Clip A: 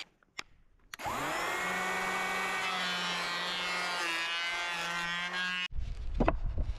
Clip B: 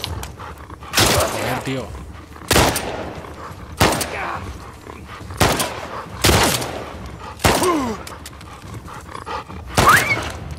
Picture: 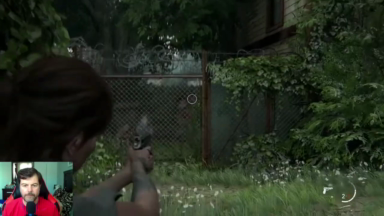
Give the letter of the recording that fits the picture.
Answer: B